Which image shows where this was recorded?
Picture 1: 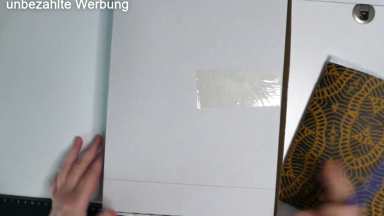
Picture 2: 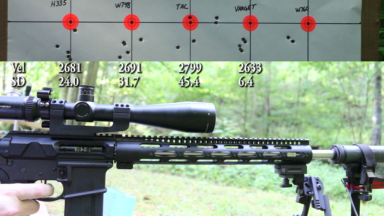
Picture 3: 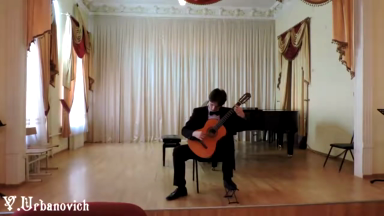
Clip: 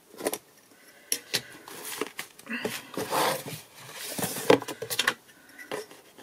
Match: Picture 1